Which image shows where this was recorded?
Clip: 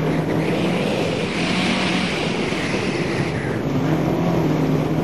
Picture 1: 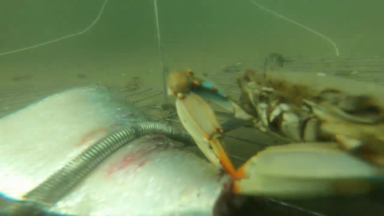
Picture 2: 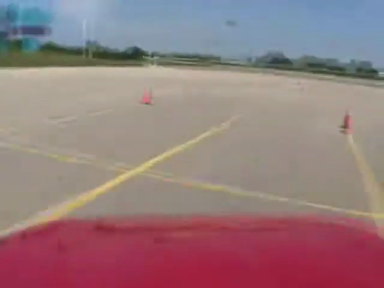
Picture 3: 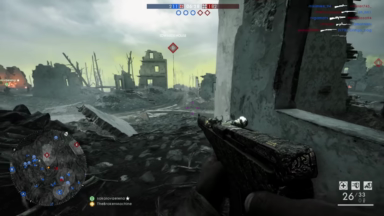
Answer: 2